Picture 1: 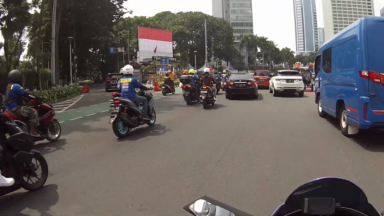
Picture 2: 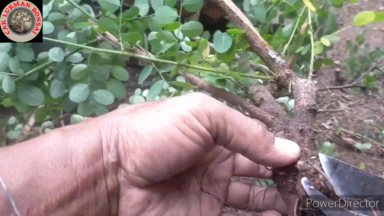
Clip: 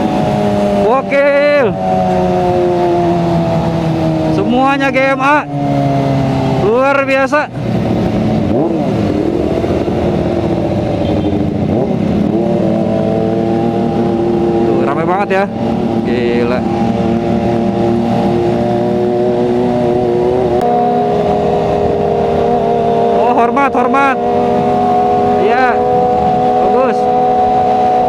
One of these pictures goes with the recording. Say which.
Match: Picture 1